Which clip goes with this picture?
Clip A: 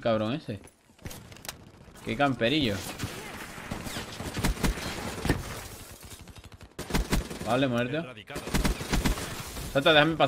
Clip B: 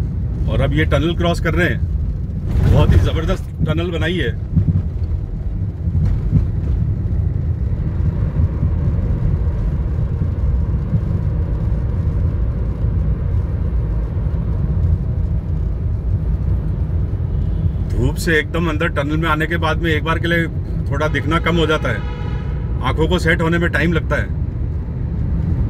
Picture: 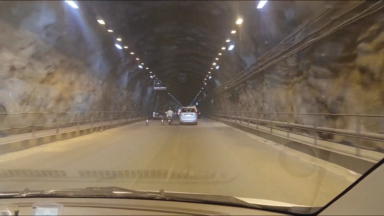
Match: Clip B